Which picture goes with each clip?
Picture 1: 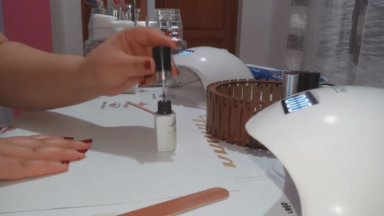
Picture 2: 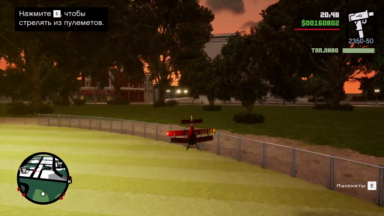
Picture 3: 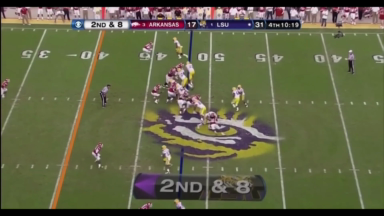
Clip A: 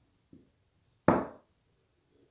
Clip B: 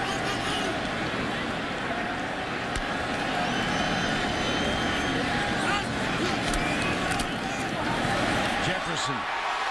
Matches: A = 1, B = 3